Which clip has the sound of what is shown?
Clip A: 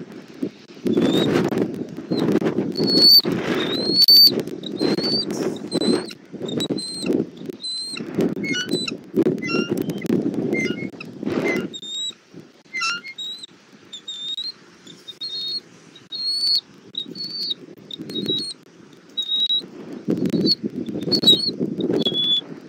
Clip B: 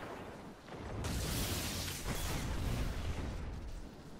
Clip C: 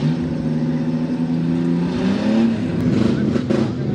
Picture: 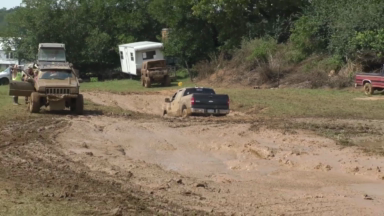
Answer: C